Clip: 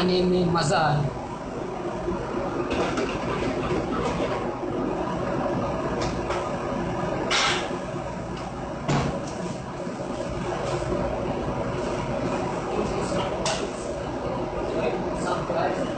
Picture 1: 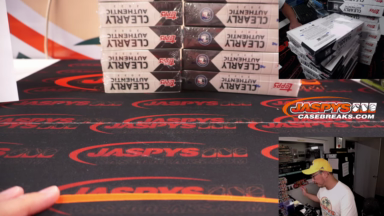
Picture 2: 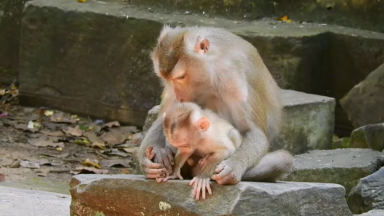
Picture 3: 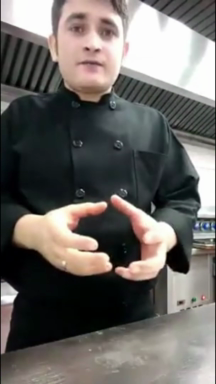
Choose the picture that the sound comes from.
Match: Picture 3